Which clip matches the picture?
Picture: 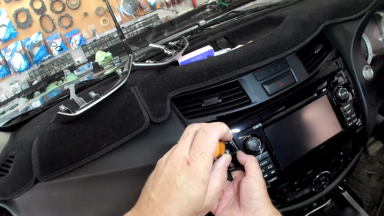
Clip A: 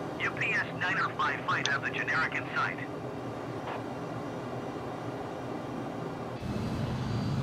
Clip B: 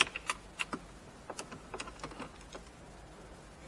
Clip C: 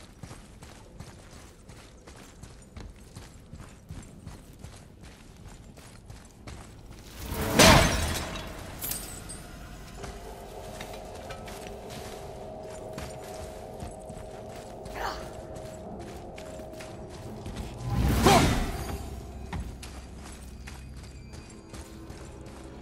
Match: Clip B